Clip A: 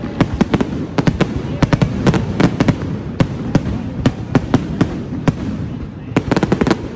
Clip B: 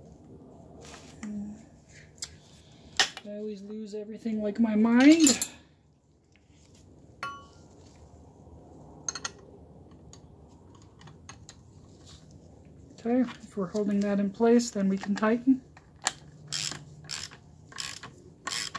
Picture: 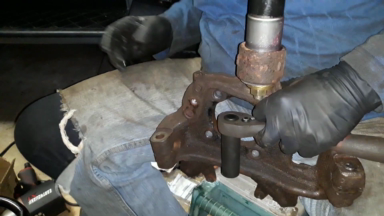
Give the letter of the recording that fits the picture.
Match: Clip B